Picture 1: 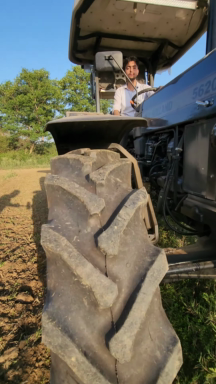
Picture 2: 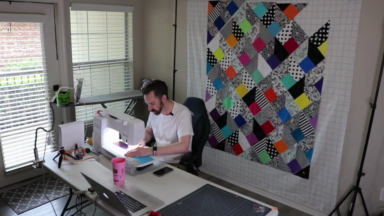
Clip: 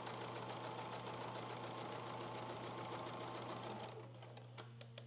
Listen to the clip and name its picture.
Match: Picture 2